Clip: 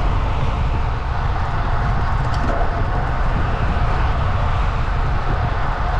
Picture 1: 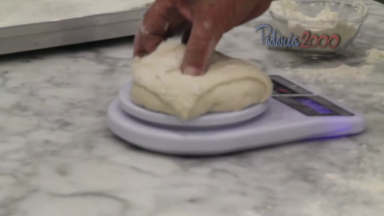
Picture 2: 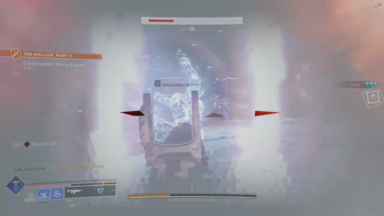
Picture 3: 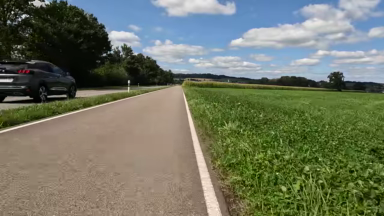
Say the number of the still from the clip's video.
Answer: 3